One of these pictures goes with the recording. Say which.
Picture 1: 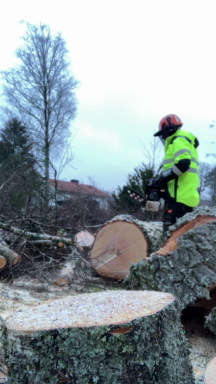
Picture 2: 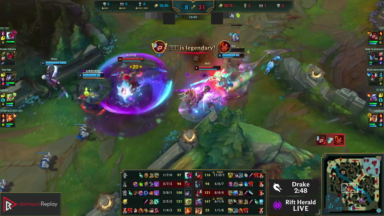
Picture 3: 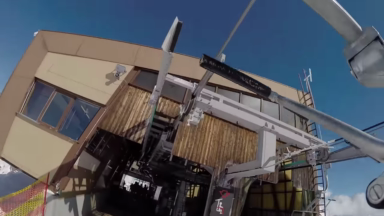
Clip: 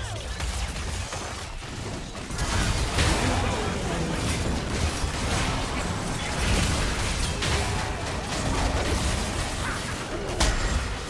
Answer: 2